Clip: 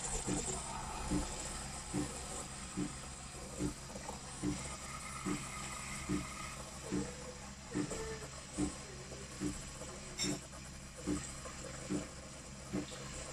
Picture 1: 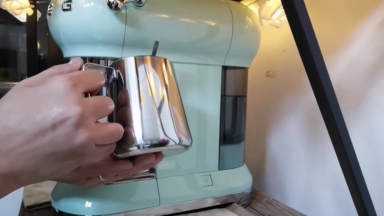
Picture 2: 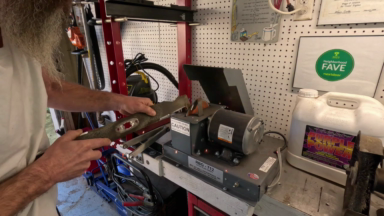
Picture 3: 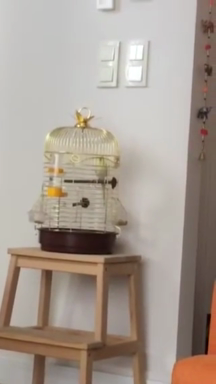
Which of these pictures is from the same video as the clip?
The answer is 1